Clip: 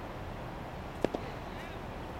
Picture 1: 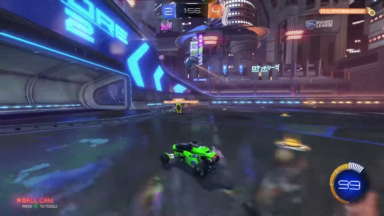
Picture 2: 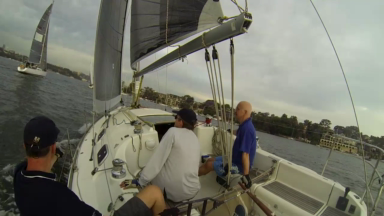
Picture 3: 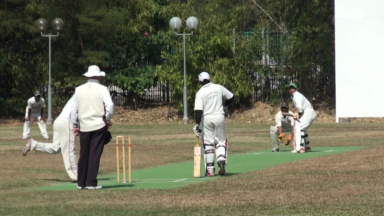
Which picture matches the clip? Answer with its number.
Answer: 3